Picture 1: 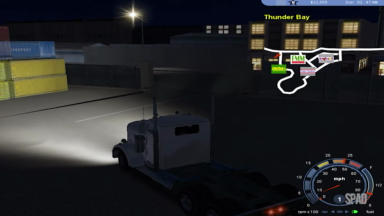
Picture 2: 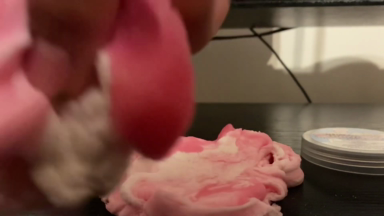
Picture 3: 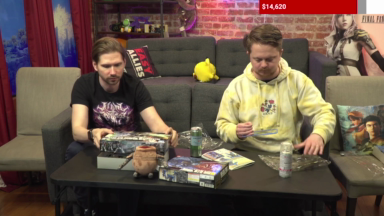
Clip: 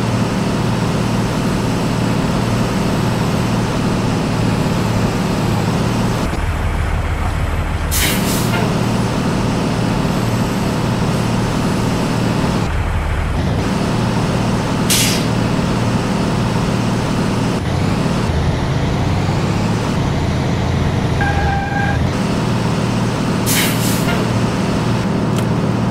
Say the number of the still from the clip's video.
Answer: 1